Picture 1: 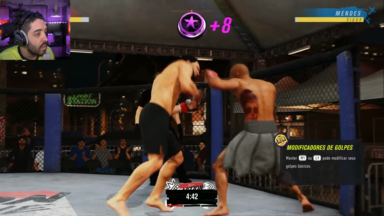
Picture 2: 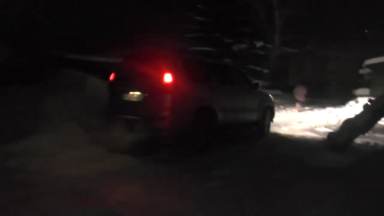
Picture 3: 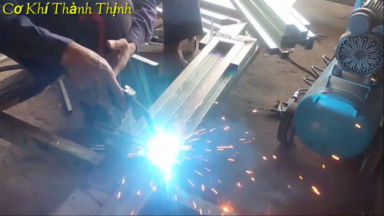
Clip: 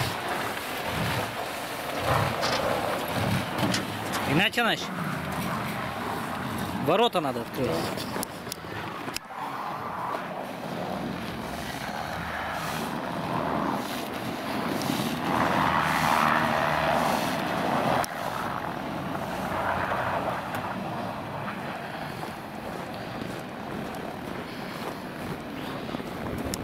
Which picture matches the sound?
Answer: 2